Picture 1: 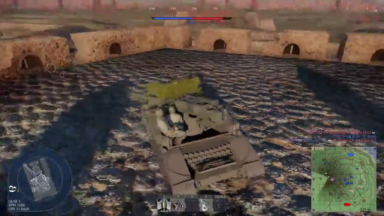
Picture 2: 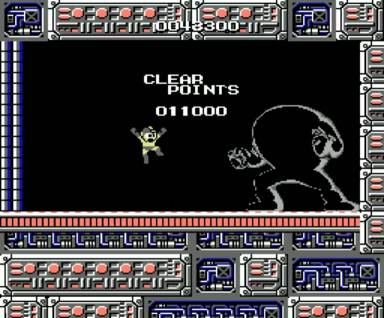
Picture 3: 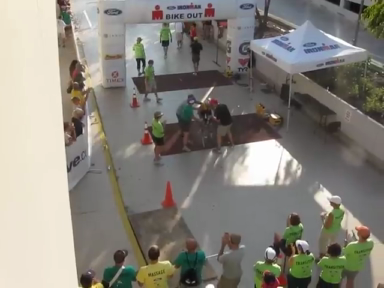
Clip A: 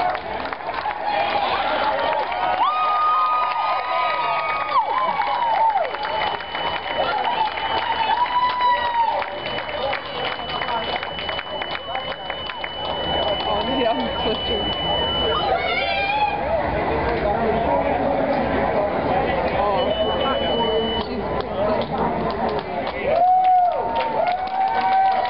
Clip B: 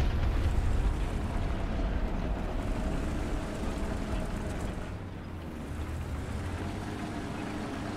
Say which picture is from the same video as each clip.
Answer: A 3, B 1